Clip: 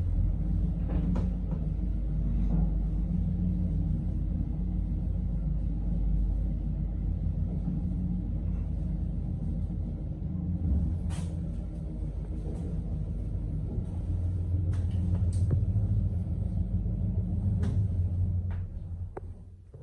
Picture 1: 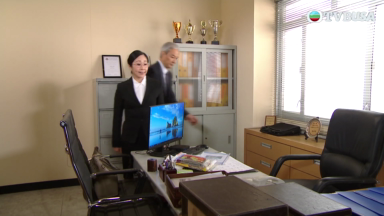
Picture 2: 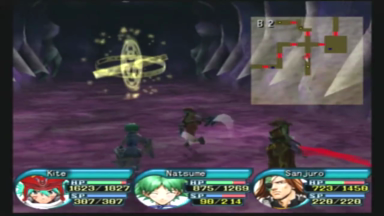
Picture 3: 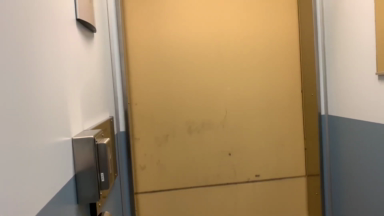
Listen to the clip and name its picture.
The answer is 3